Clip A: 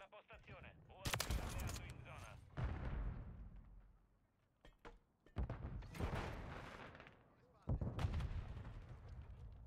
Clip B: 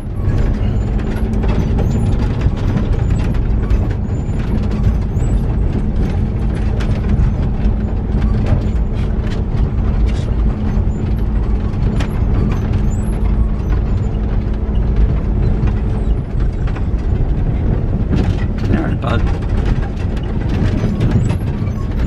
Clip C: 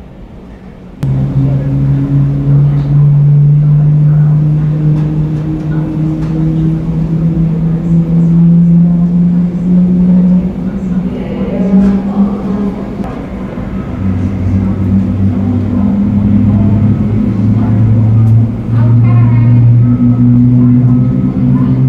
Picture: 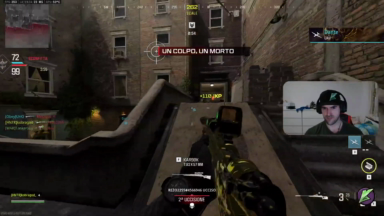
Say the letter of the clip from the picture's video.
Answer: A